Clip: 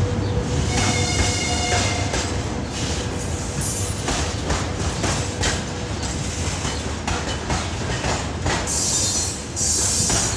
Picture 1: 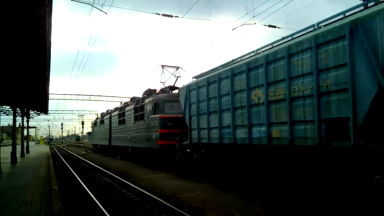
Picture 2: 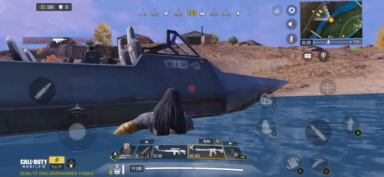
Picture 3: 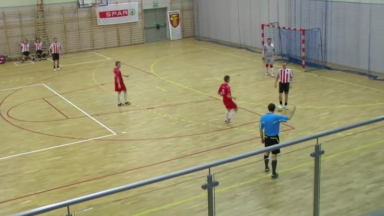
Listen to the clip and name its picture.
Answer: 1